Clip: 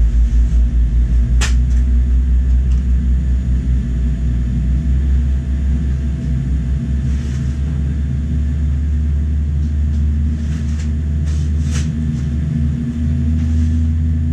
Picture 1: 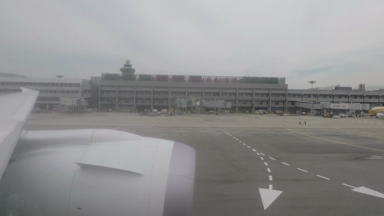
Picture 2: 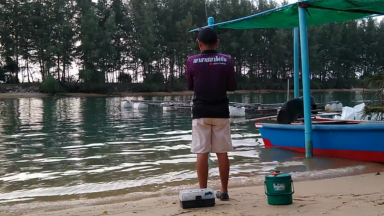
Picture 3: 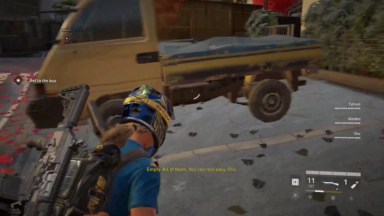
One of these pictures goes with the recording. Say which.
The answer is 1